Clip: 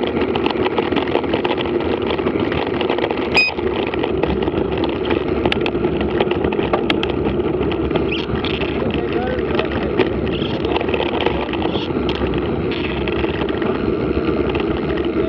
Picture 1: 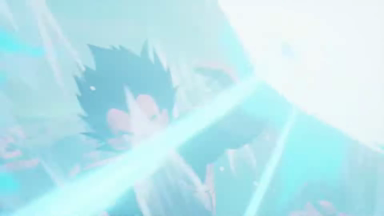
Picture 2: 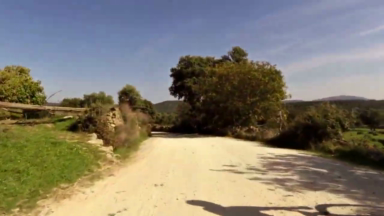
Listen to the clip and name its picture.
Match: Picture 2